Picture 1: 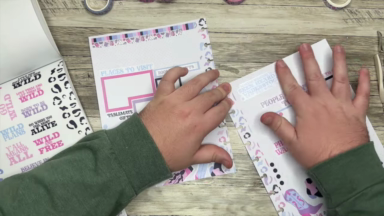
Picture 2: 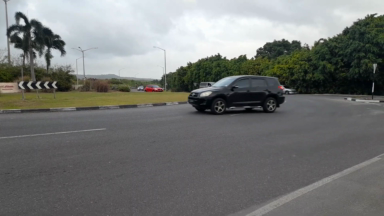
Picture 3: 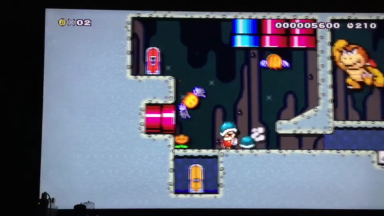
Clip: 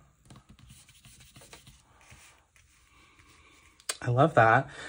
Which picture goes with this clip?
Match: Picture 1